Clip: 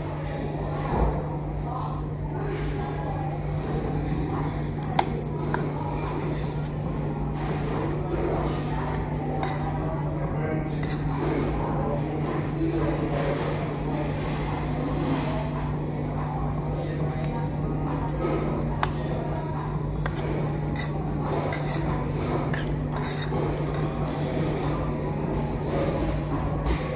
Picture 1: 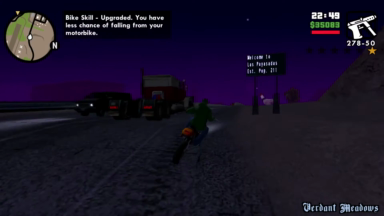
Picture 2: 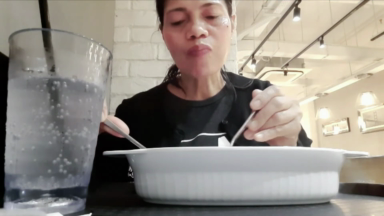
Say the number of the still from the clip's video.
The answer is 2